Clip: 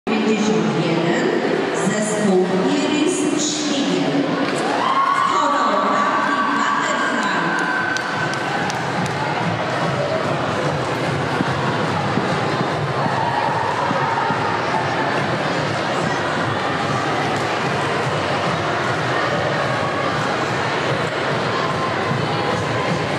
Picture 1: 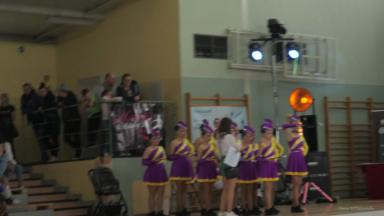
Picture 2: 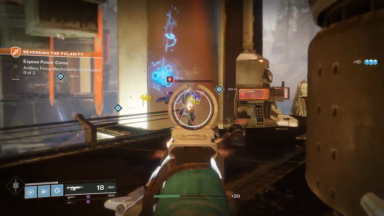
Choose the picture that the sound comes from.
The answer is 1